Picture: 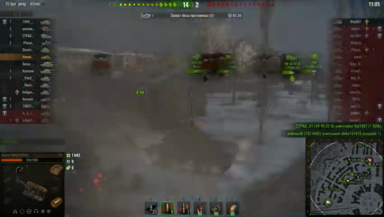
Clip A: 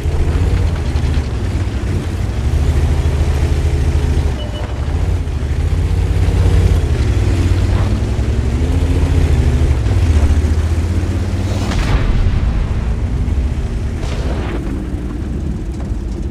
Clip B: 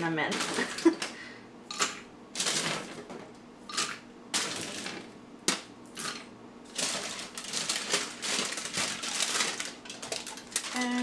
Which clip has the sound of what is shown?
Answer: A